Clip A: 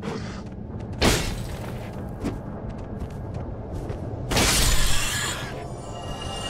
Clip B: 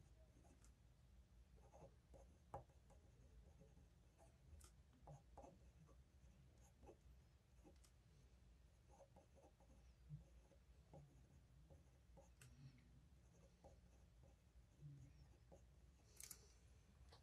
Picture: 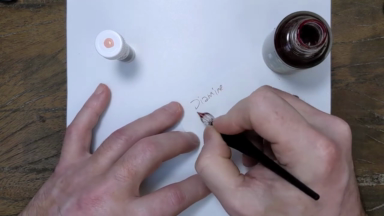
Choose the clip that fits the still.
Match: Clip B